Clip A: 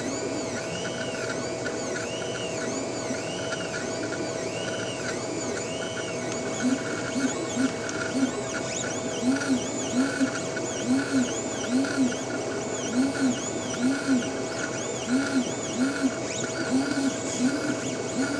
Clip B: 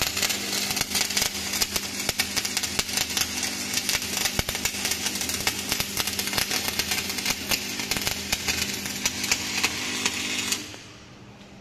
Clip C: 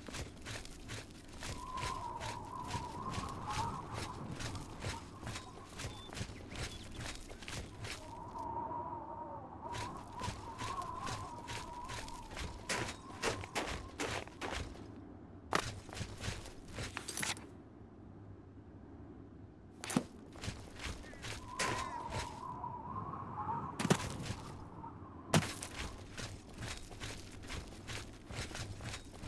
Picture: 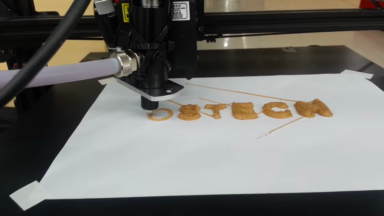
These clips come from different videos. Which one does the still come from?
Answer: A